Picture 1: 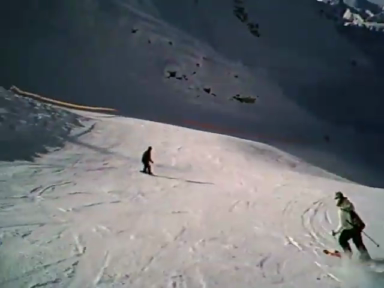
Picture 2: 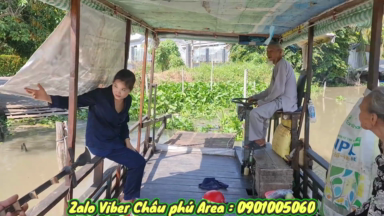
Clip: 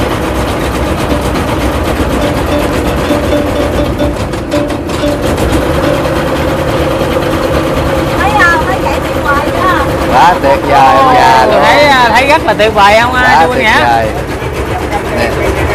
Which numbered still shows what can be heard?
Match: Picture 2